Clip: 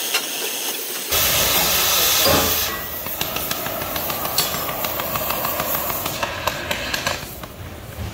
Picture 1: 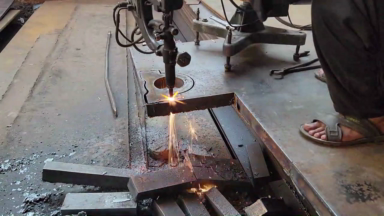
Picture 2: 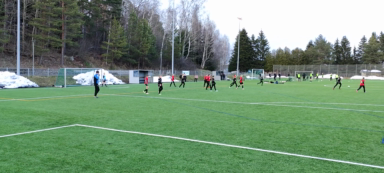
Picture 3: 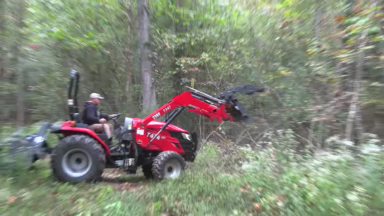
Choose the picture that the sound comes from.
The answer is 1